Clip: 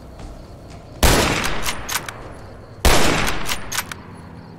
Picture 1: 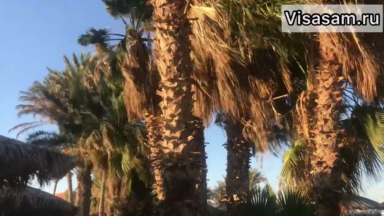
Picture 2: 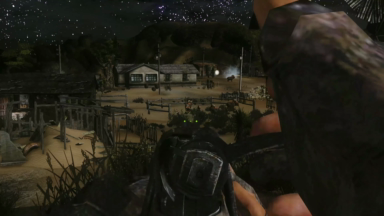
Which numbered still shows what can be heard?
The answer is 2